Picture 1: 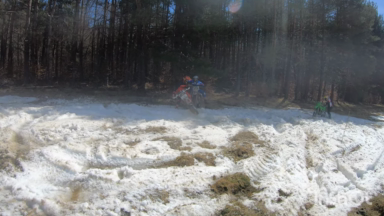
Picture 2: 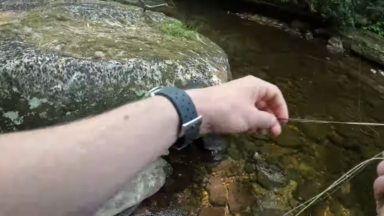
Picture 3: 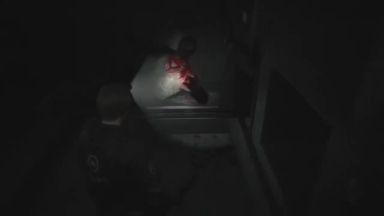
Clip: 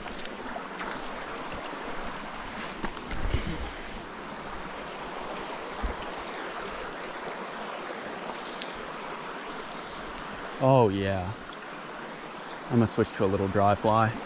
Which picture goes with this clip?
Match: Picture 2